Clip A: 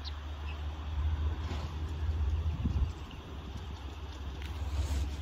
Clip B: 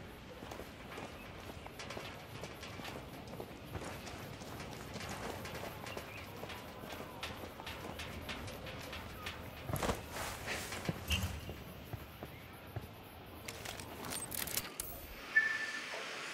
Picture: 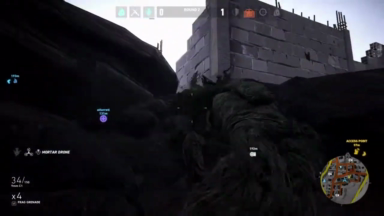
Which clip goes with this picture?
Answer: B